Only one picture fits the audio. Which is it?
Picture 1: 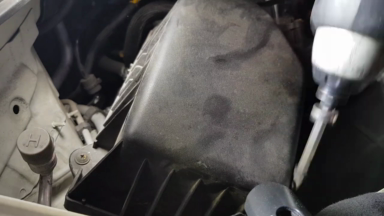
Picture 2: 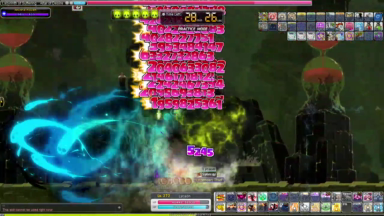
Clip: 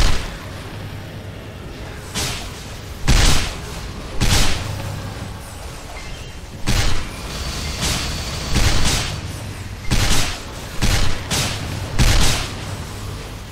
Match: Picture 2